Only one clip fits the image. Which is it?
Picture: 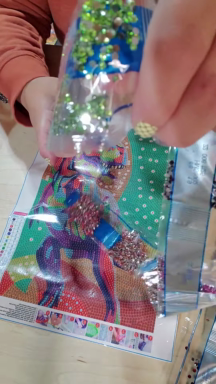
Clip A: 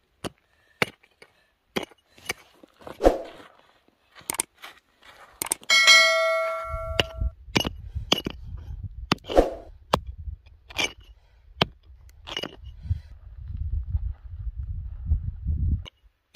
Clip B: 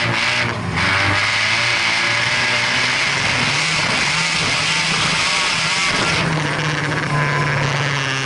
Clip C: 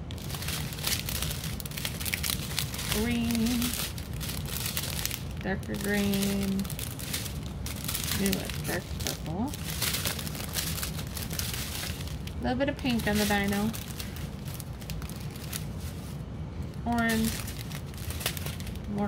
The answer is C